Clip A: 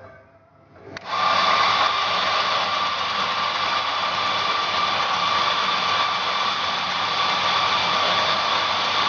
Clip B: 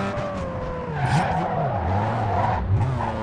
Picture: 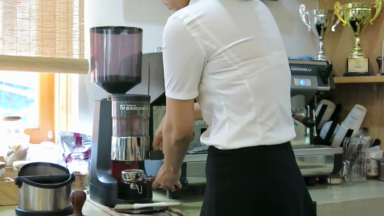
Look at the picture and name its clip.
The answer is A